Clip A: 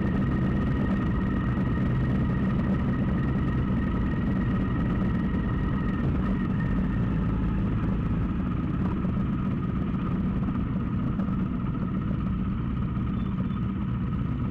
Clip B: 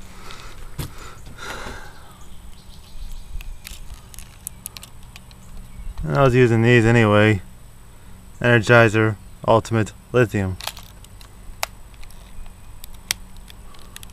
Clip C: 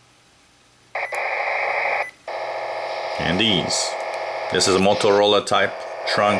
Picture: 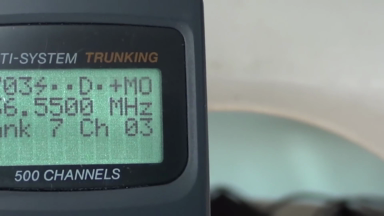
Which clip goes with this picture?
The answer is C